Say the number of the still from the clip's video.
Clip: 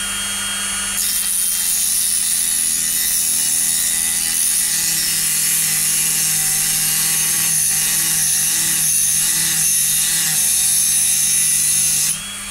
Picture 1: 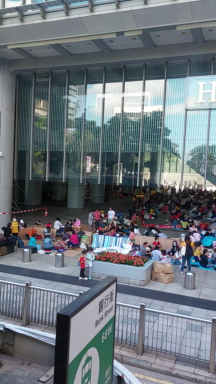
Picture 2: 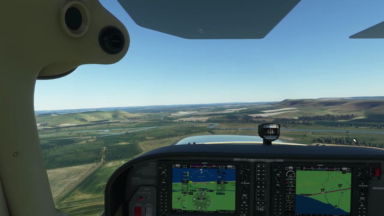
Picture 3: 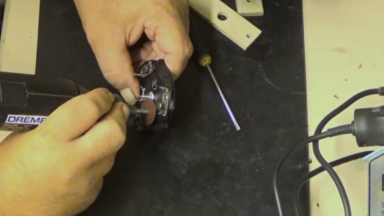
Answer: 3